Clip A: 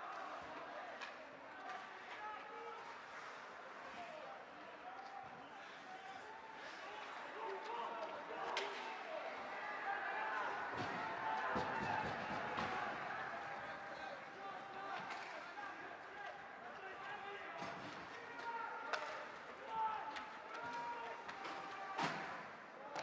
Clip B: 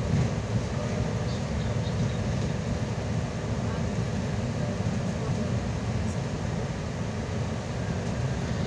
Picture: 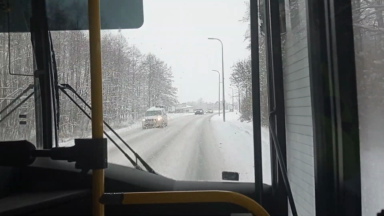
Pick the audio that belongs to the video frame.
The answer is B